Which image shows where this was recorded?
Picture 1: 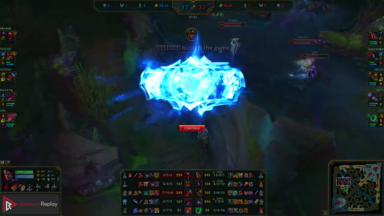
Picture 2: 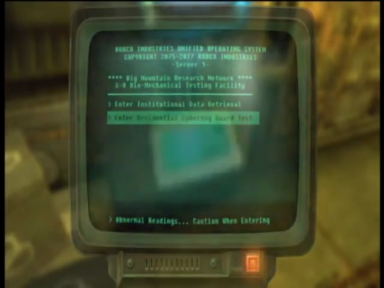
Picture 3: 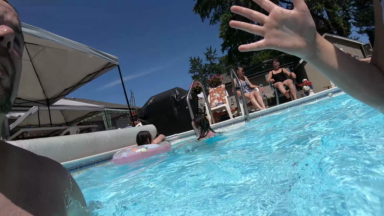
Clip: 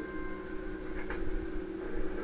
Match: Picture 2